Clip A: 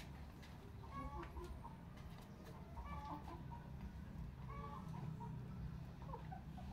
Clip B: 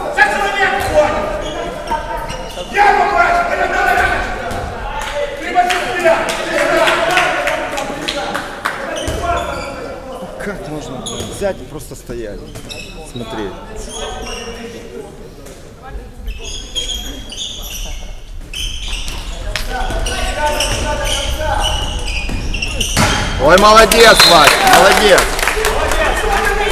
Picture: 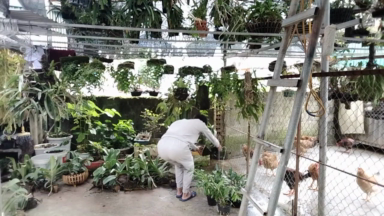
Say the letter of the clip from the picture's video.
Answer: A